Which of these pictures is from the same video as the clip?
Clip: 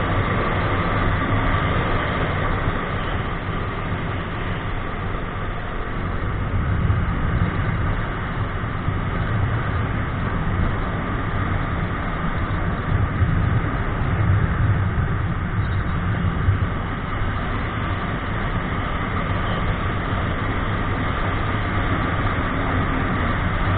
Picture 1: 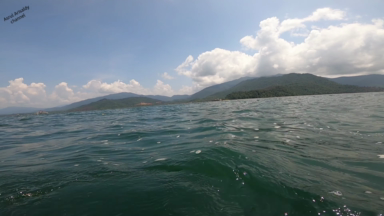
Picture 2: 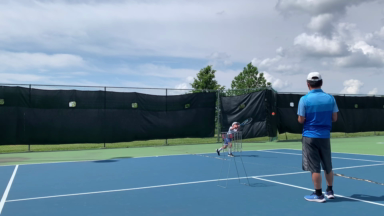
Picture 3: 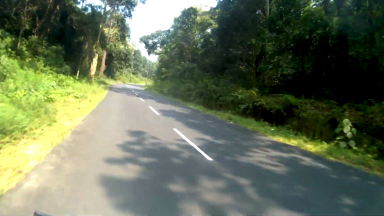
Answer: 3